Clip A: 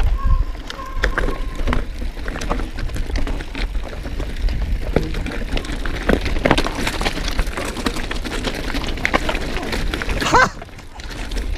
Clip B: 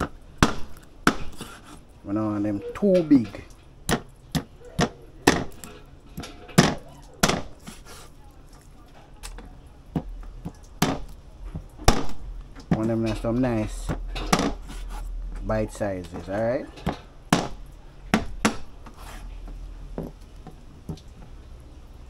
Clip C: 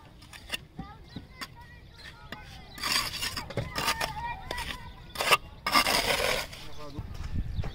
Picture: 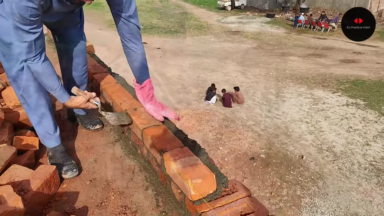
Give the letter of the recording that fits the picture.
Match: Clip C